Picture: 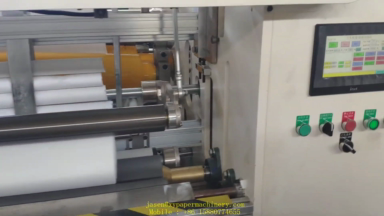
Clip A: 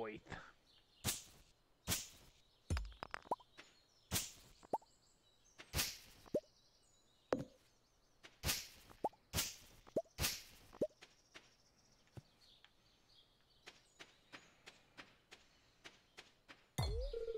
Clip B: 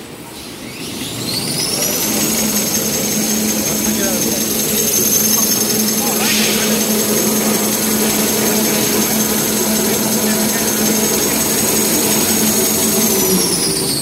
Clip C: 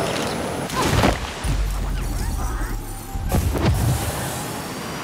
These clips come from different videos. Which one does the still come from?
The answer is B